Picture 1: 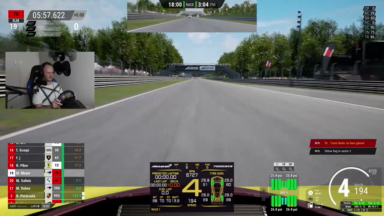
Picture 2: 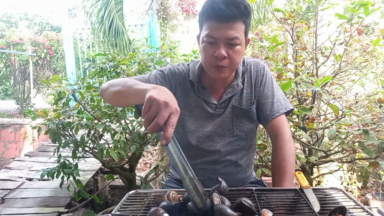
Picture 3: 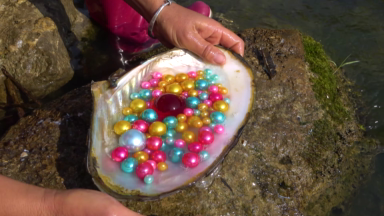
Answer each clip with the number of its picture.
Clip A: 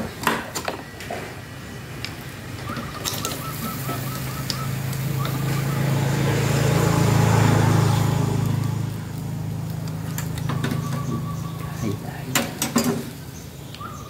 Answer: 2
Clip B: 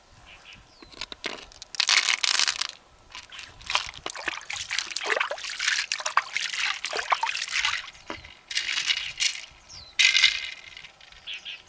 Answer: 3